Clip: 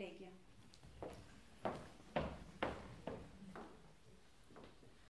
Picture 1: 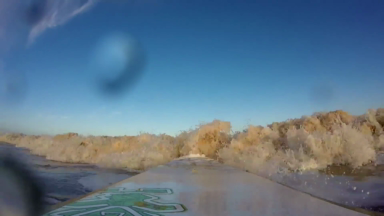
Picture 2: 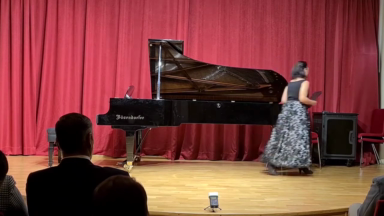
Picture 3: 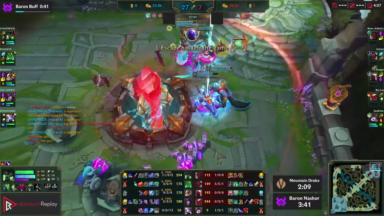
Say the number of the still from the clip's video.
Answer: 2